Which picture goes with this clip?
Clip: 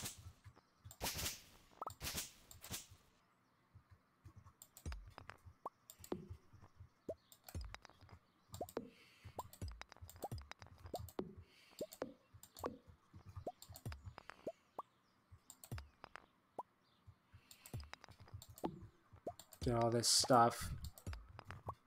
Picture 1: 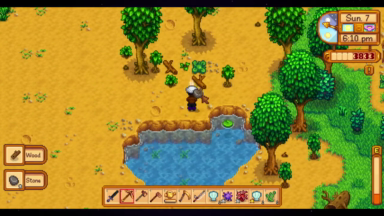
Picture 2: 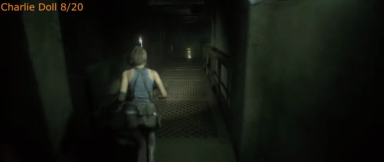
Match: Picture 1